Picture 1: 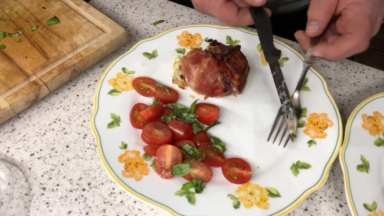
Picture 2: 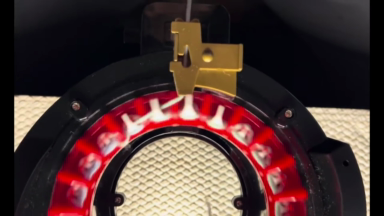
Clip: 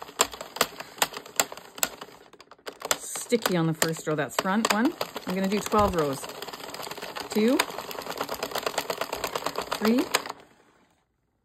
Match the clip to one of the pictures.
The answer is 2